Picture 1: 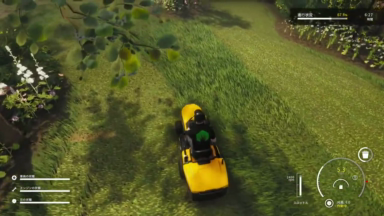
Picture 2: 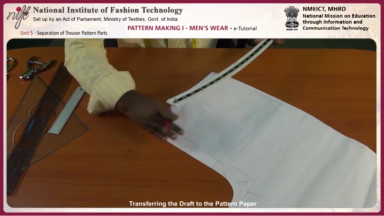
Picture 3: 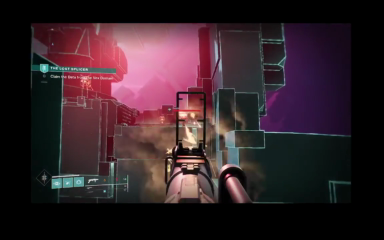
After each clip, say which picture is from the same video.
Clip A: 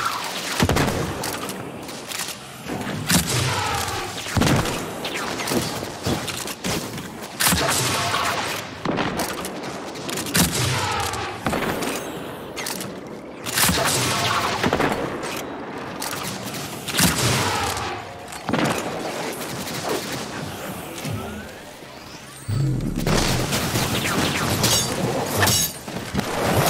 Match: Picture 3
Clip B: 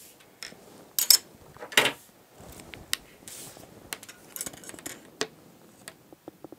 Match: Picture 2